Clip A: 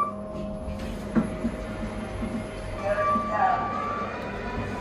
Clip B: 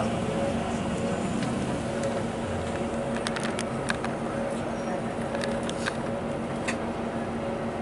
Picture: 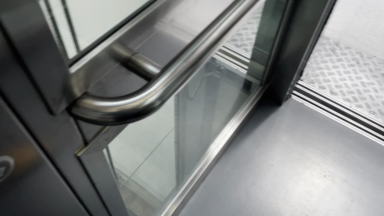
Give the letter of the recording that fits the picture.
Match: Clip A